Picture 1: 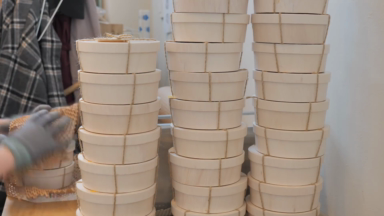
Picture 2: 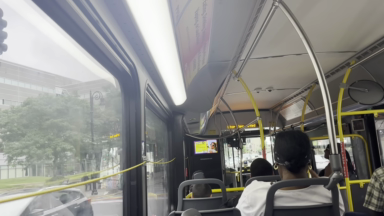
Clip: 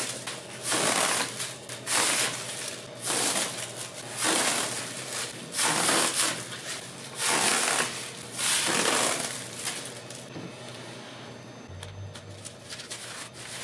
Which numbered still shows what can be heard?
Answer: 1